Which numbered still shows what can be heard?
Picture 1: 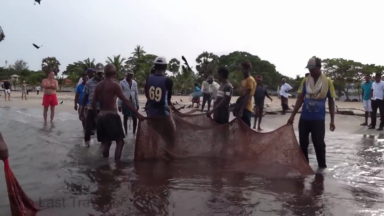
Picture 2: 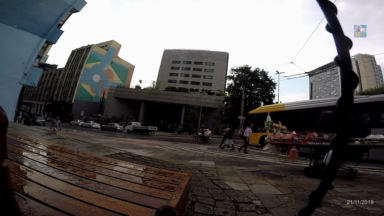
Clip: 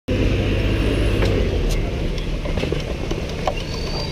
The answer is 2